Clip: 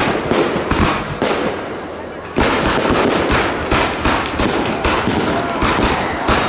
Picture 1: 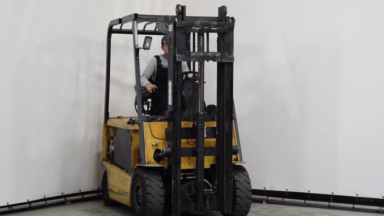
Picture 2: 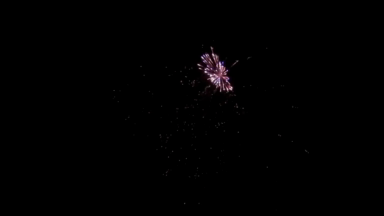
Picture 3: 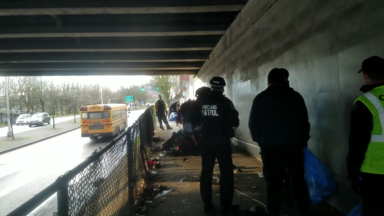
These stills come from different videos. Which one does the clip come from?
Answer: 2